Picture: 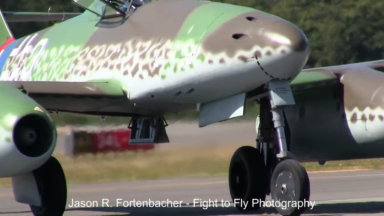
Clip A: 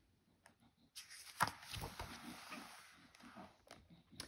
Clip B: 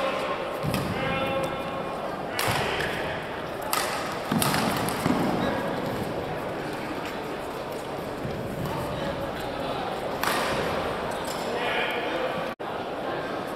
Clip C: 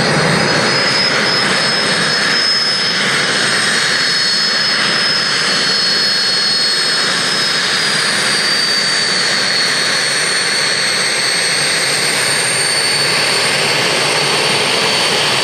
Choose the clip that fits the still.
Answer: C